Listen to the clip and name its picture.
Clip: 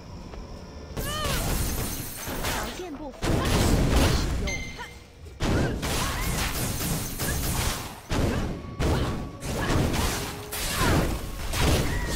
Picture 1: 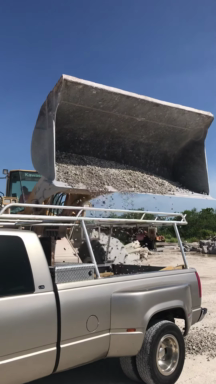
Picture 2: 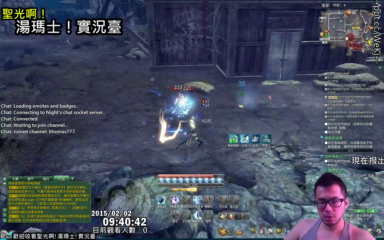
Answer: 2